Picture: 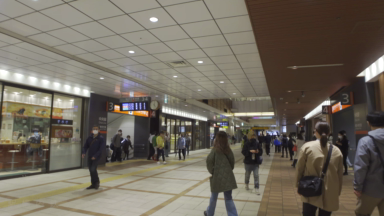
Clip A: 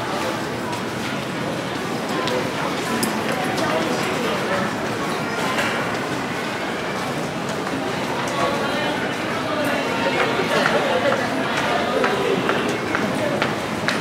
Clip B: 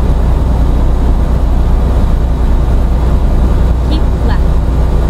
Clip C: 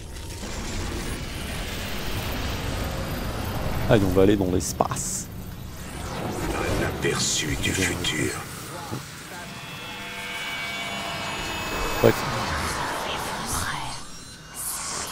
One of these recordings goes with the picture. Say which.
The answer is A